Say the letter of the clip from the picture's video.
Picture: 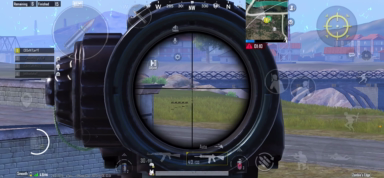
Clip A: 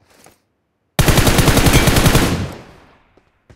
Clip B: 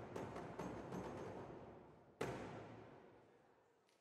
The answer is A